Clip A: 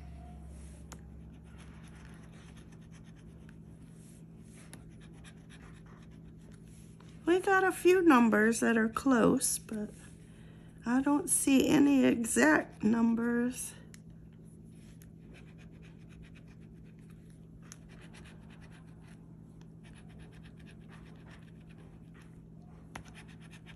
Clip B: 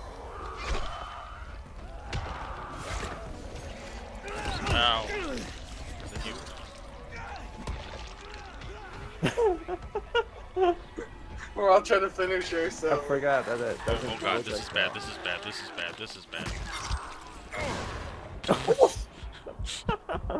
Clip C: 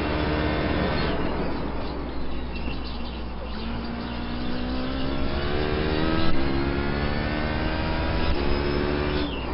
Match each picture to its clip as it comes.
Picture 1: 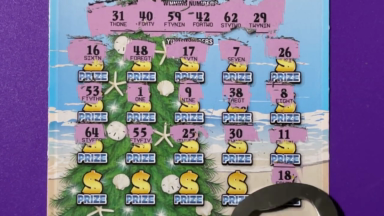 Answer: A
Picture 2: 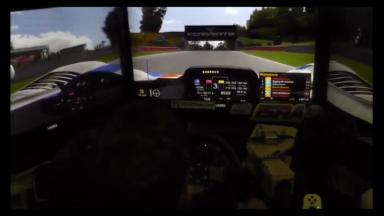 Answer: C